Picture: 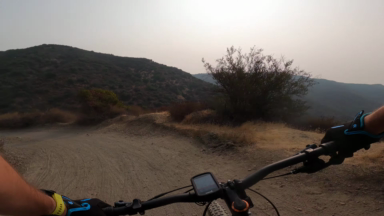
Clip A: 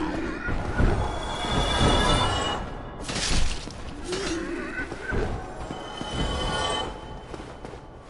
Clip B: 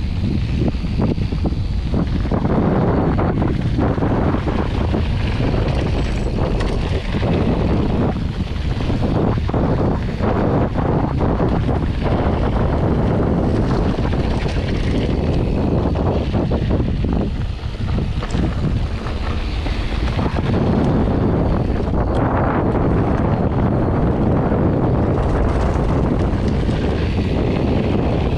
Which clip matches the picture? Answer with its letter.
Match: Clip B